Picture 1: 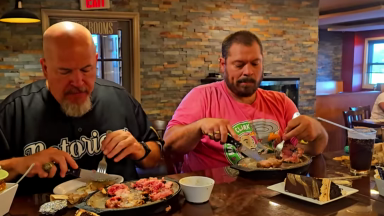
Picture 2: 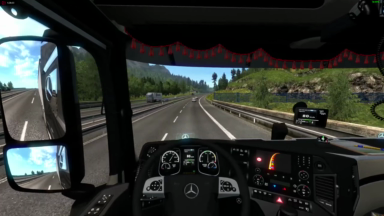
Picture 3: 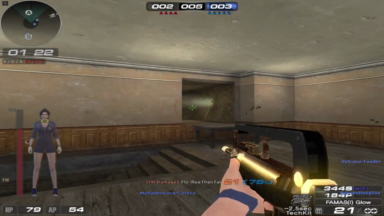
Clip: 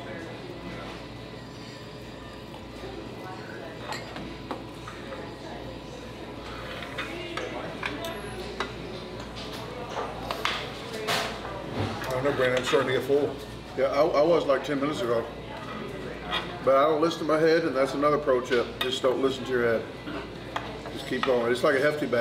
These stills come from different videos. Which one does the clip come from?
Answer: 1